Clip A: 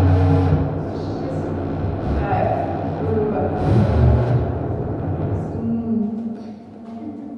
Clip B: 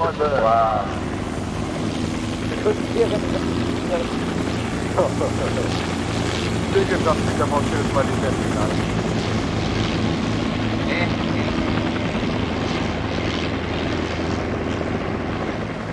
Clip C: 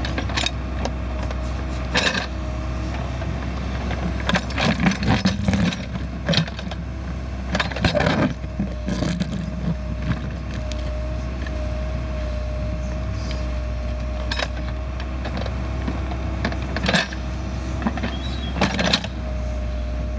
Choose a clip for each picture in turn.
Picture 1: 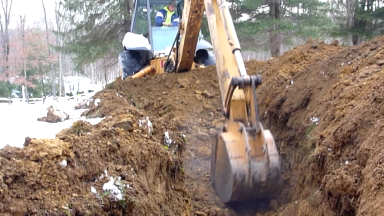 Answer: C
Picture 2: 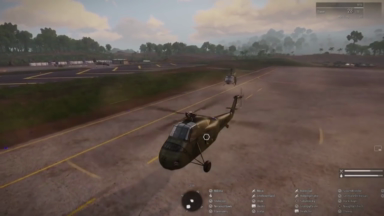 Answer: B